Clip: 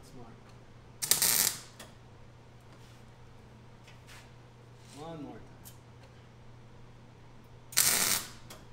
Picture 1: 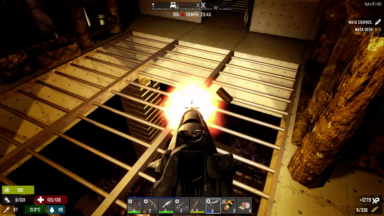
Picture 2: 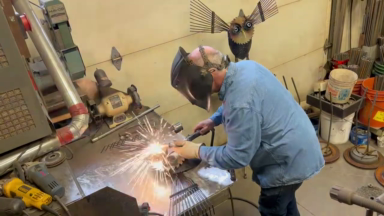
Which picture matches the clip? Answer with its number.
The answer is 2